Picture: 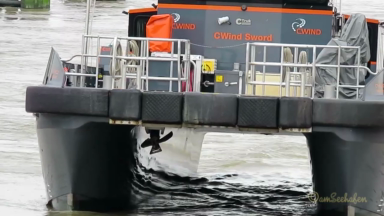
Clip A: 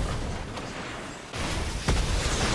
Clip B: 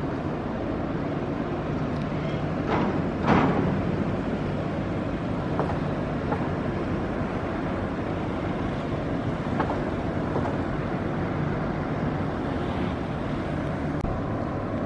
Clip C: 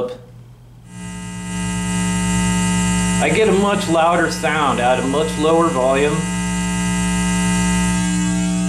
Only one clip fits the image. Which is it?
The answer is B